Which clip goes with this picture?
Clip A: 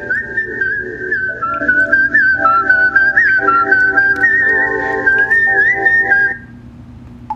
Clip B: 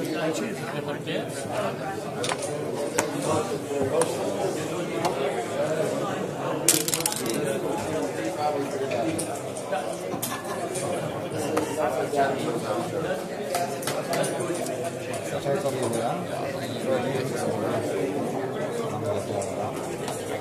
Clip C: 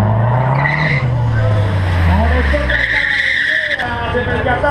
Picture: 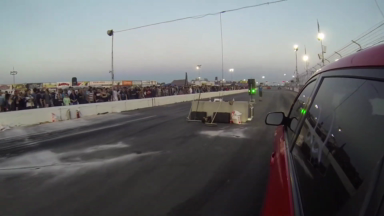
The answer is C